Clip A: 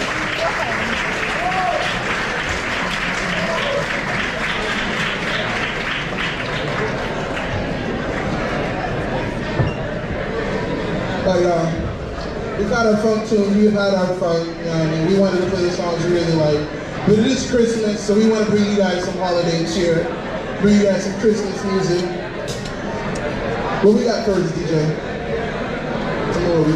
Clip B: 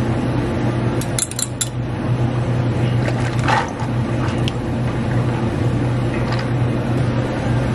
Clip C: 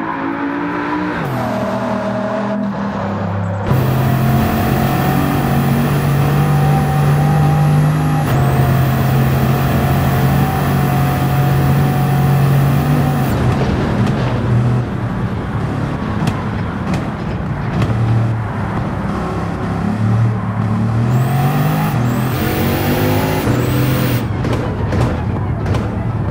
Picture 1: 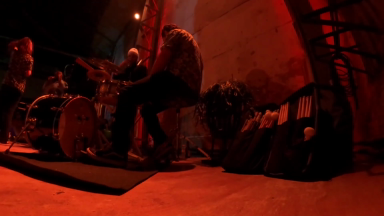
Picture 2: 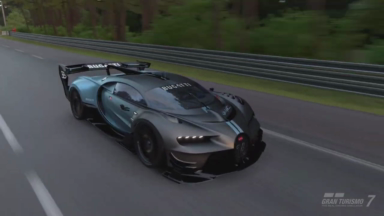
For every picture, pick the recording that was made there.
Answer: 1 A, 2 C